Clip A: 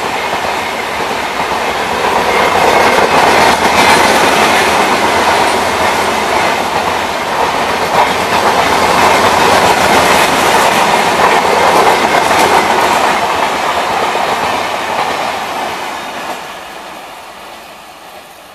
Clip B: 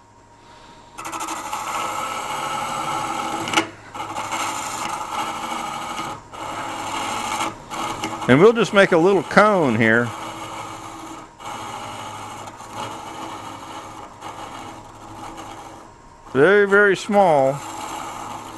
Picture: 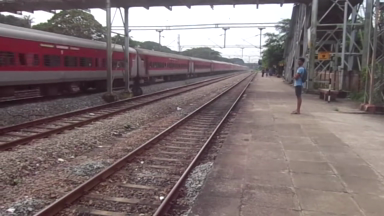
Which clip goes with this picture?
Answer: A